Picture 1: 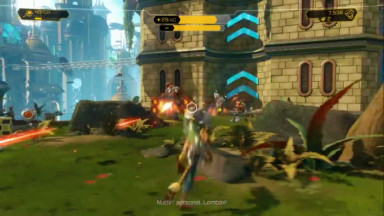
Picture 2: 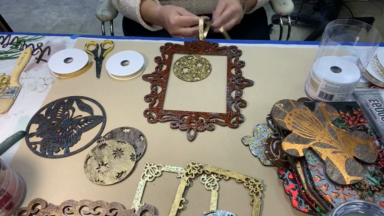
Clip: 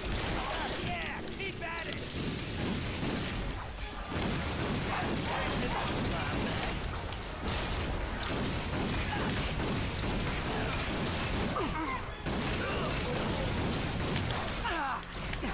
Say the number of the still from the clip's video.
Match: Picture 1